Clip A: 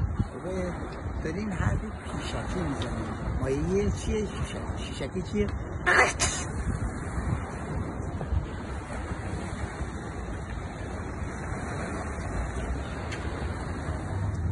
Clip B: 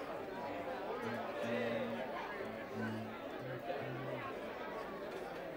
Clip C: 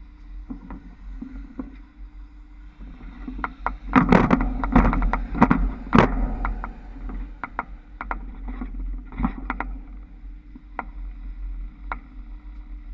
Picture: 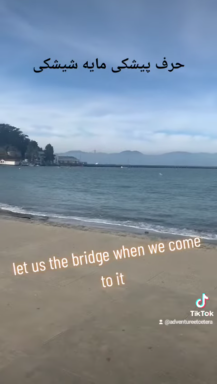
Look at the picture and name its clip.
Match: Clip A